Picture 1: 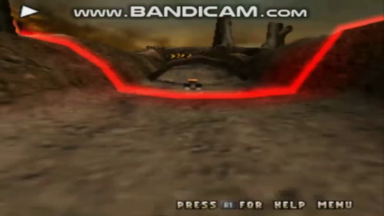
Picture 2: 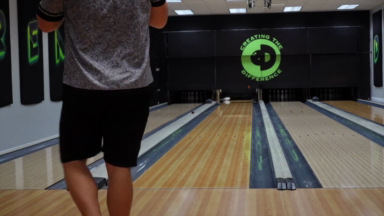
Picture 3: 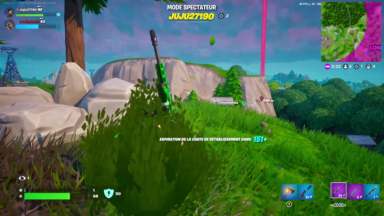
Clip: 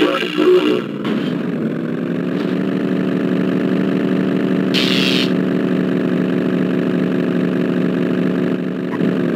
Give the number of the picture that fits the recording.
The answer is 1